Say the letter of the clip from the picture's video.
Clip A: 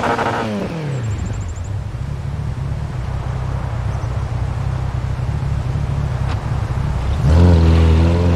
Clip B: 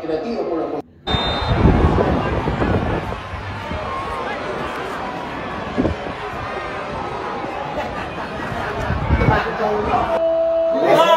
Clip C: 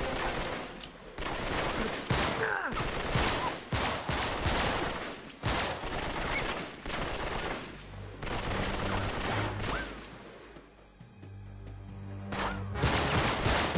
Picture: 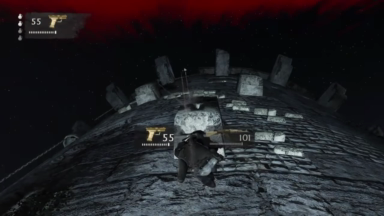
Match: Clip C